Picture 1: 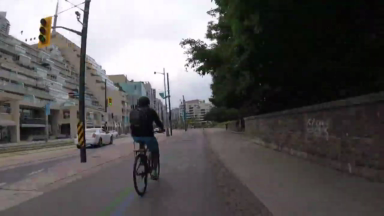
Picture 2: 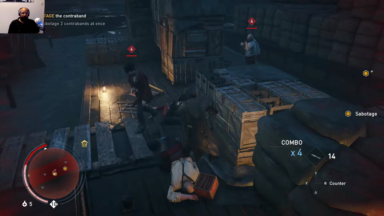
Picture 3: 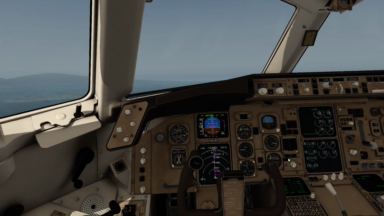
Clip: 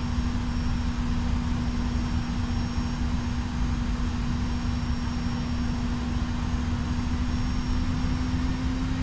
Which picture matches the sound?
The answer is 3